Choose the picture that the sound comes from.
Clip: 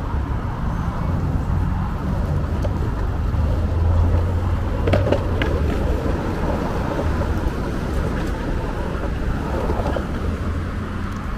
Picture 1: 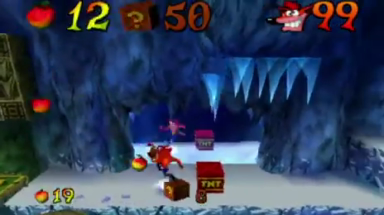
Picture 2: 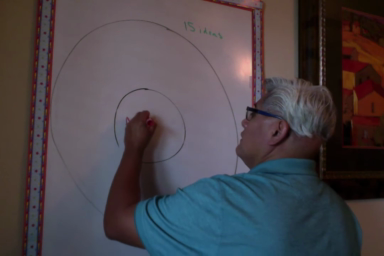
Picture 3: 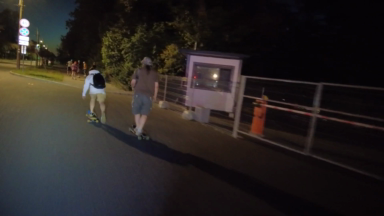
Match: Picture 3